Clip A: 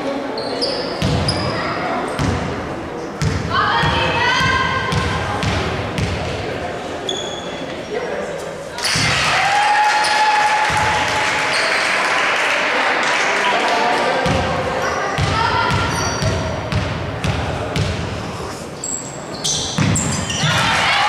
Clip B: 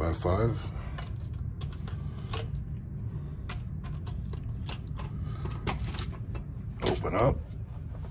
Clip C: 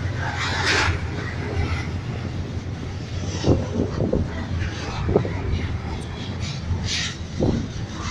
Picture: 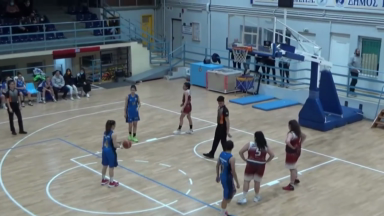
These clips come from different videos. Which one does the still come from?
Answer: A